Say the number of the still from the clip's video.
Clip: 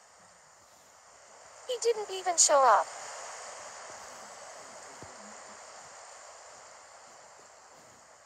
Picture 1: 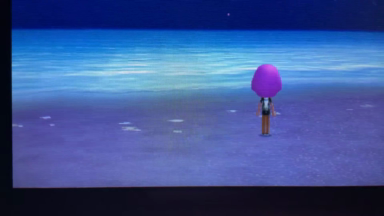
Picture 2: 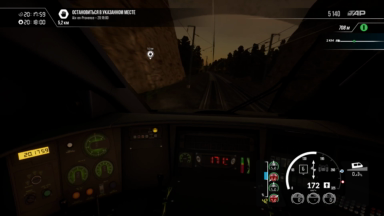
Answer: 1